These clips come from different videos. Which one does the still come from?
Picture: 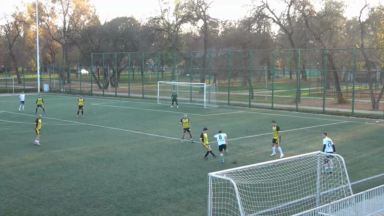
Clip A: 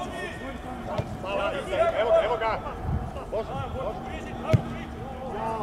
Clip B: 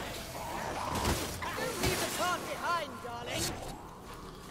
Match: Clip A